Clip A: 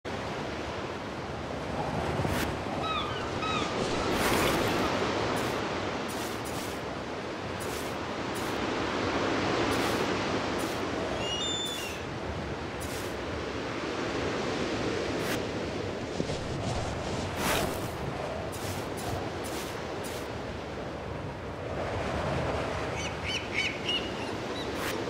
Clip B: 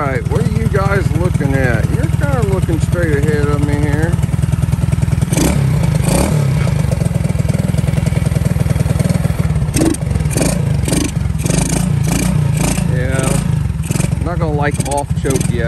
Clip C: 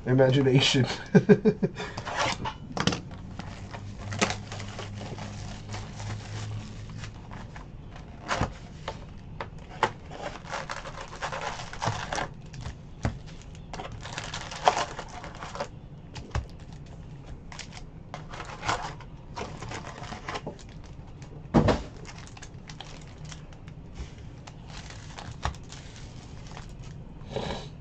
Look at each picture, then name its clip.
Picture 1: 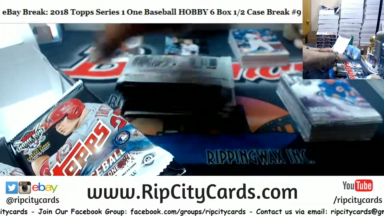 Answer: C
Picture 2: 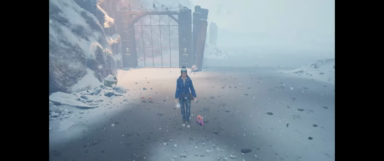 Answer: A